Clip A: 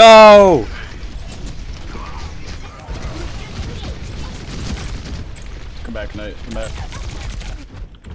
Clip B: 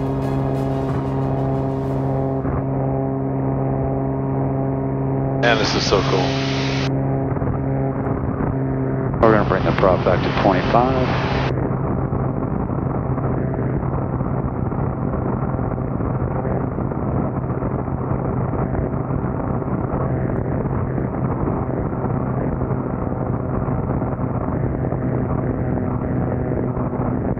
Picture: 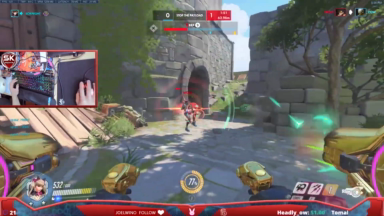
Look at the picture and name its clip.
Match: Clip A